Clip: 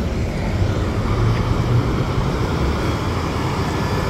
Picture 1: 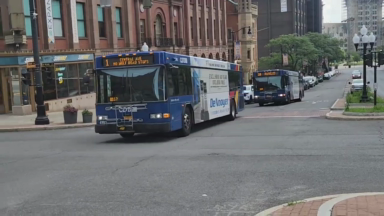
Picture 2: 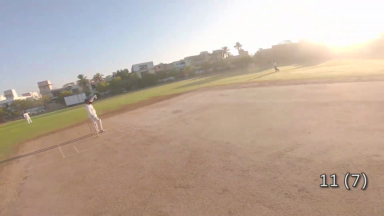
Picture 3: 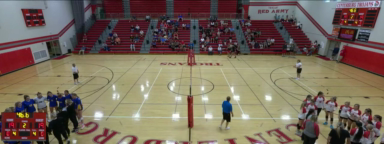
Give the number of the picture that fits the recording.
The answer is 1